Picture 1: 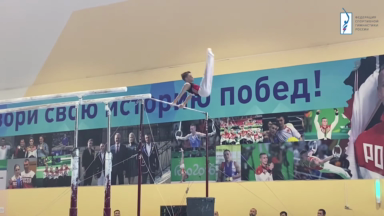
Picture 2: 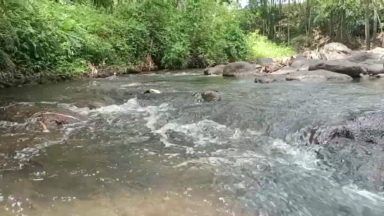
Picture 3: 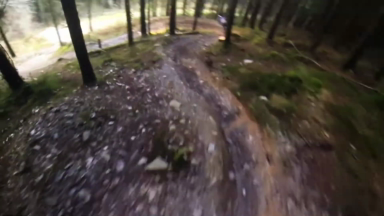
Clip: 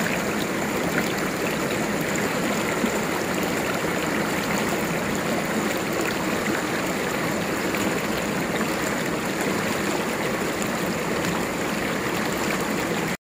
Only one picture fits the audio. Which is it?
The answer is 2